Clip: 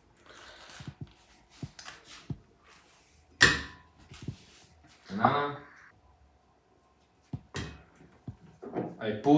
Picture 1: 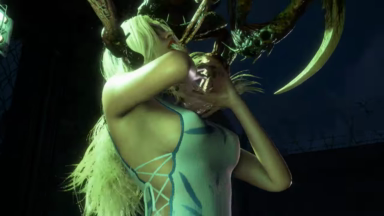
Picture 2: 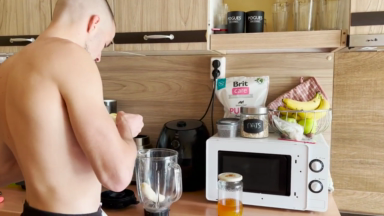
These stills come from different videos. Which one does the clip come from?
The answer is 2